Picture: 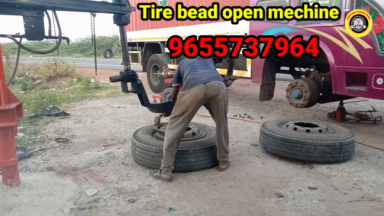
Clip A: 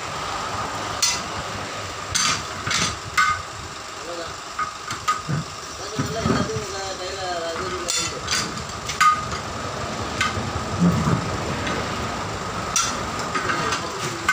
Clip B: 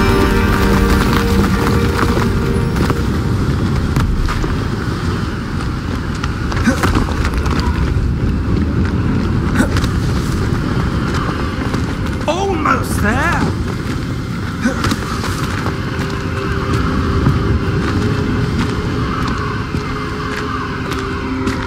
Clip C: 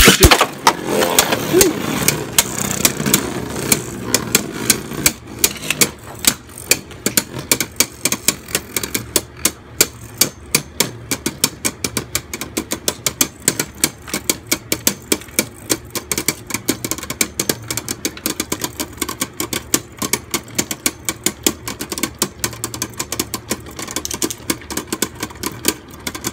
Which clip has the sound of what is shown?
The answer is A